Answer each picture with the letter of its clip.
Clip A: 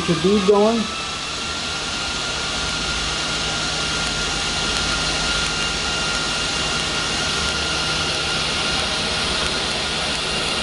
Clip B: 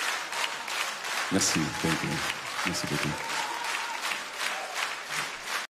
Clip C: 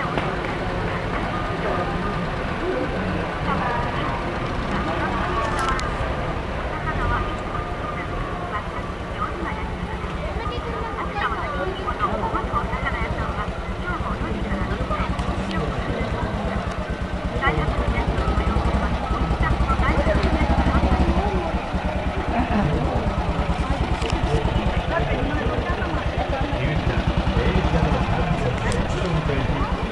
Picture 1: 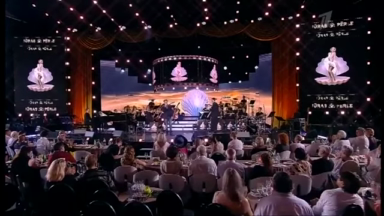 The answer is B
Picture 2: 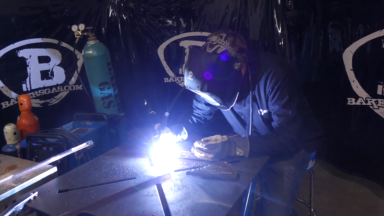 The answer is A